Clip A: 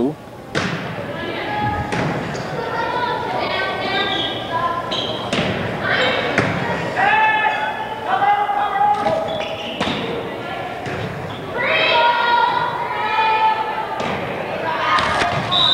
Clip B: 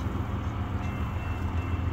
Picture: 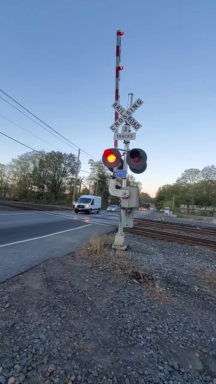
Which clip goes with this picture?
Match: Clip B